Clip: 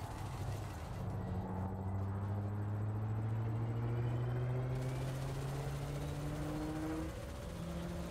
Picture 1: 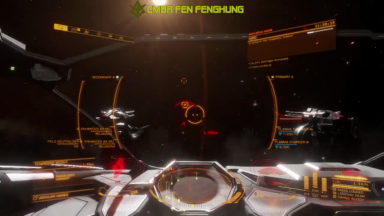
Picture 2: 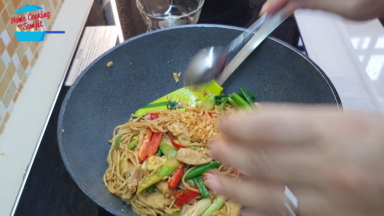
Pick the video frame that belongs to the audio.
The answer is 1